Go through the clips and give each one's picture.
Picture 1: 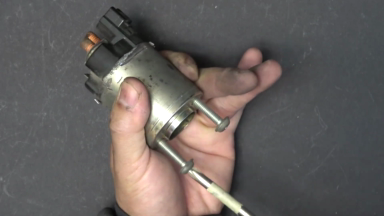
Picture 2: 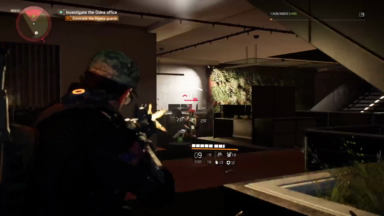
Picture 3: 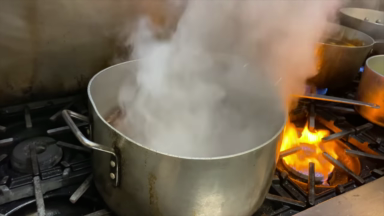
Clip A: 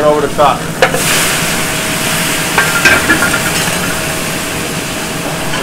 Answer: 3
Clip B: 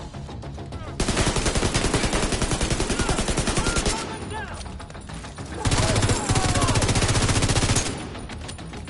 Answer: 2